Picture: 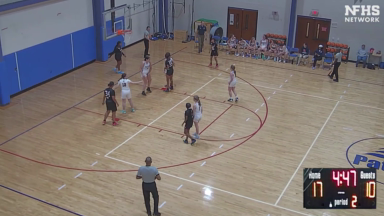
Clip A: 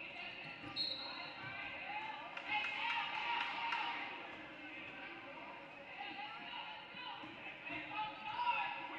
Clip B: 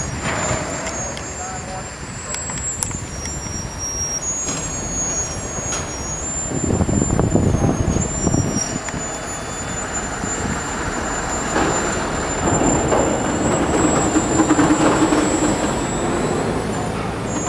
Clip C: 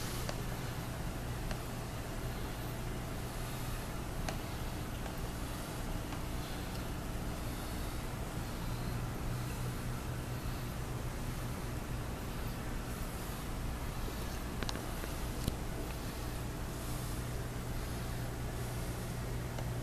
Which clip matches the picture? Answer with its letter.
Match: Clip A